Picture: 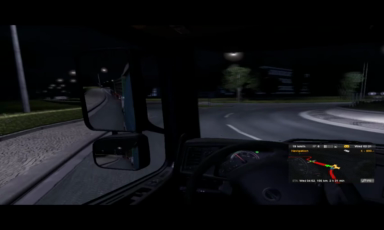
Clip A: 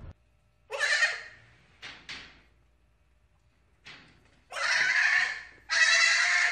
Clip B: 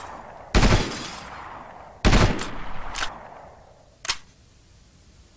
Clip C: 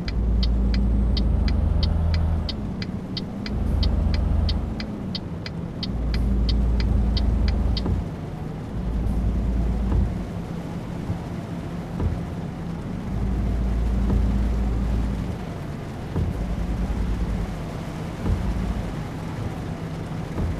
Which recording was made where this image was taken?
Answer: C